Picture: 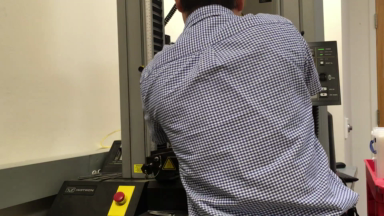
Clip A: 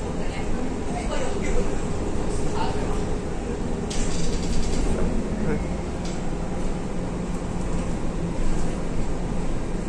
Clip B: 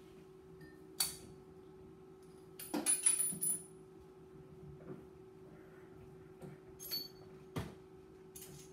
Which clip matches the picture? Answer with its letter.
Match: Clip B